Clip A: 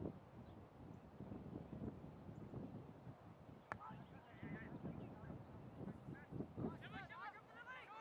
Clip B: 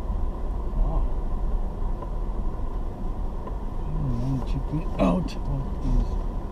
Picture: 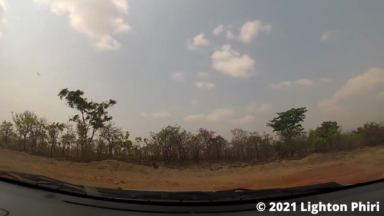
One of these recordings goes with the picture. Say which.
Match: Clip B